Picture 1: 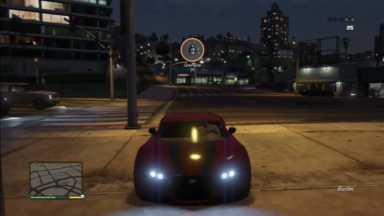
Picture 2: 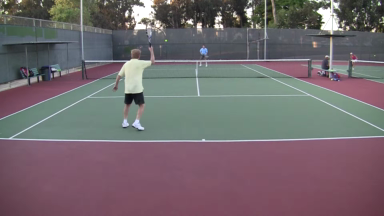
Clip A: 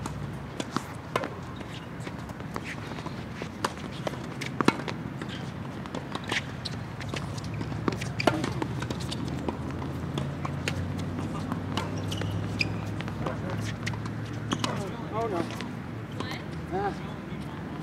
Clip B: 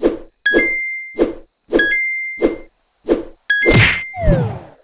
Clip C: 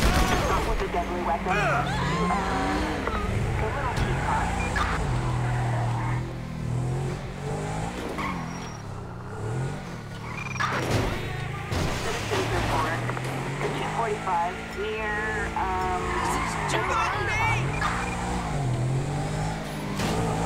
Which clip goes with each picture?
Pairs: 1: C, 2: A